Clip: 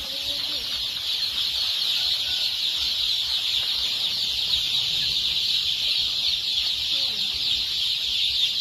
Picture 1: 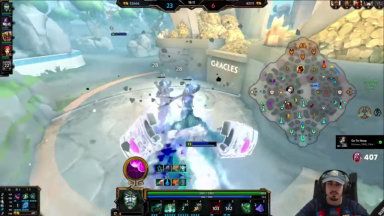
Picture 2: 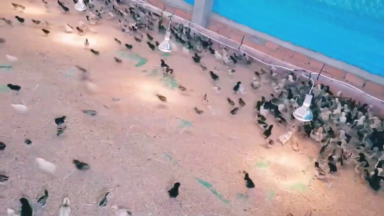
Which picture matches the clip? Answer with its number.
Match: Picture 2